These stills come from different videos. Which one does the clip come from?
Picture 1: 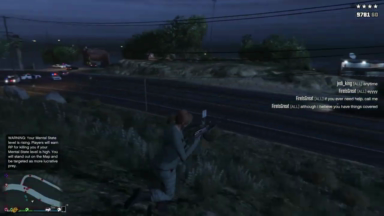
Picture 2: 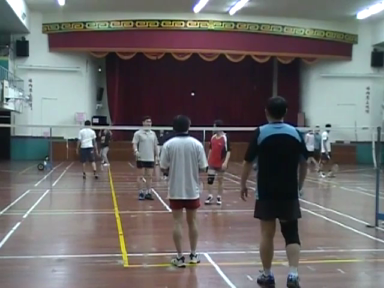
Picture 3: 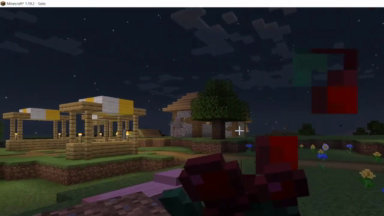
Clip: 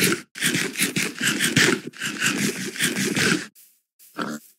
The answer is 3